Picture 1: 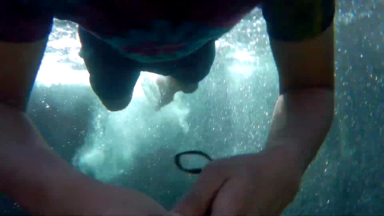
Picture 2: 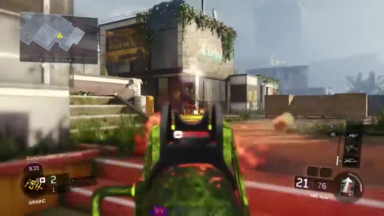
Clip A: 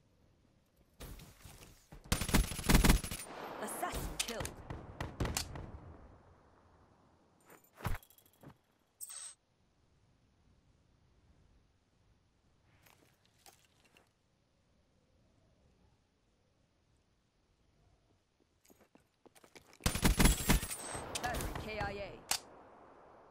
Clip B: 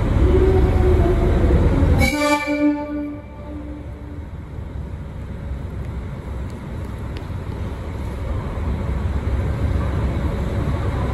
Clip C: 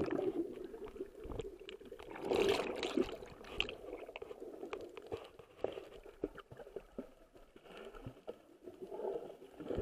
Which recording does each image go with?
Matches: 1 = C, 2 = A